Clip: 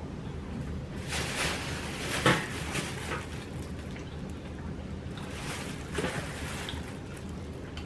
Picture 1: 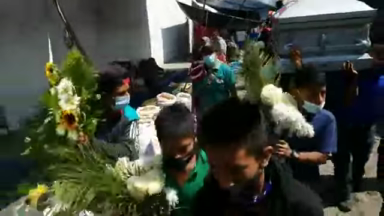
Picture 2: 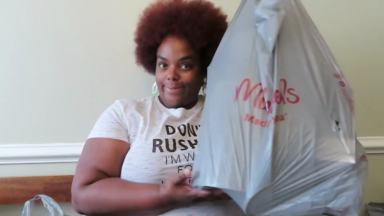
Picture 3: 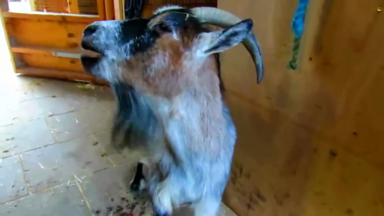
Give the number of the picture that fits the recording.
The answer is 2